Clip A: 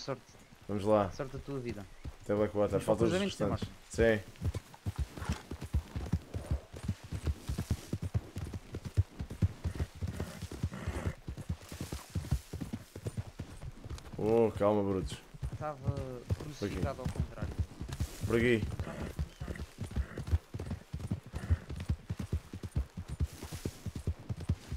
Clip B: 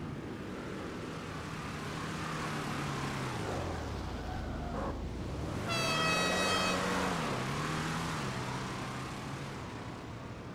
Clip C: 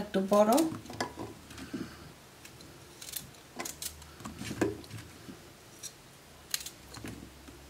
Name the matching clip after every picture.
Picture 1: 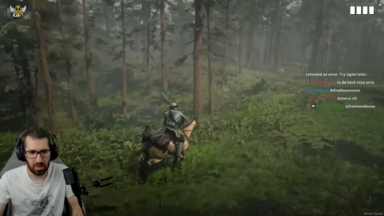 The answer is A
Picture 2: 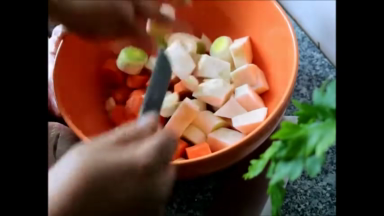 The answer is C